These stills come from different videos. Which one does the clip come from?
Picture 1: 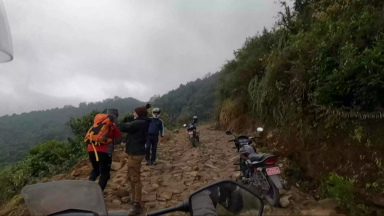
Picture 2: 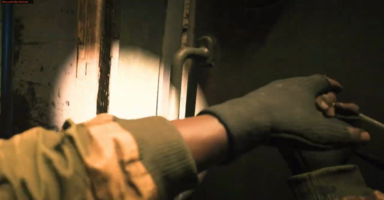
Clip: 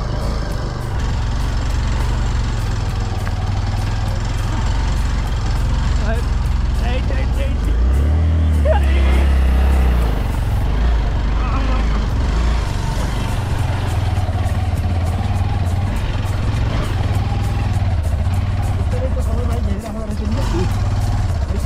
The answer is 1